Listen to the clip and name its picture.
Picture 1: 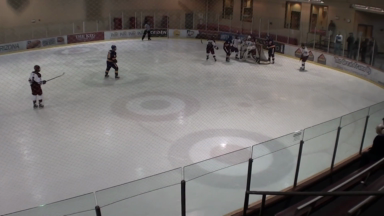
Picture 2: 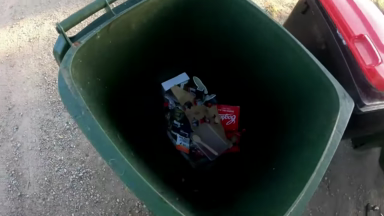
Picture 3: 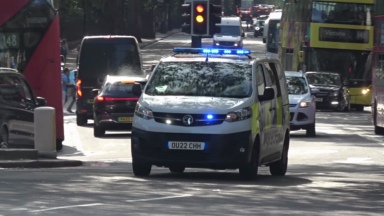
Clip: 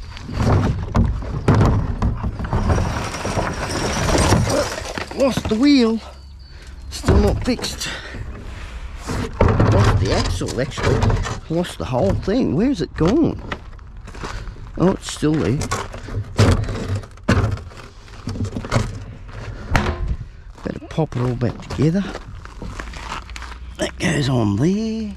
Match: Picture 2